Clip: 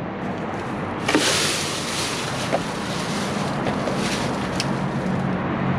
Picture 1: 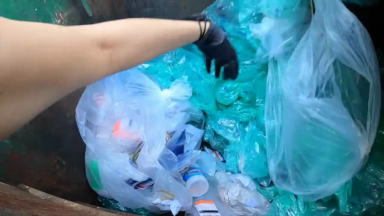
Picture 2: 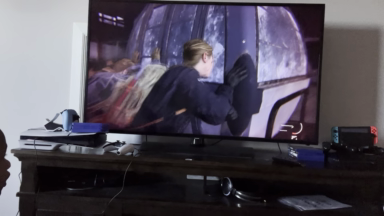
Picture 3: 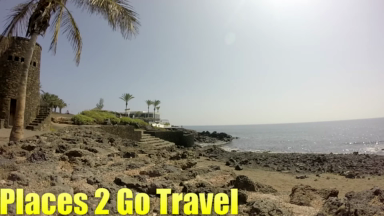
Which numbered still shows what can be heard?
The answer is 1